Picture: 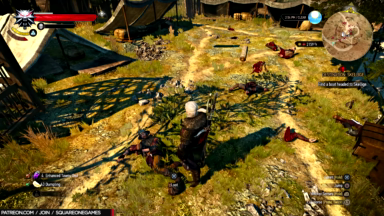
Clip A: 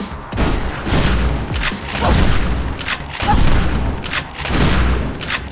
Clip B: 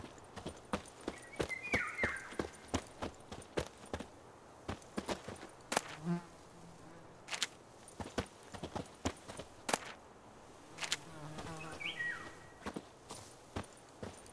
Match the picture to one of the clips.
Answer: B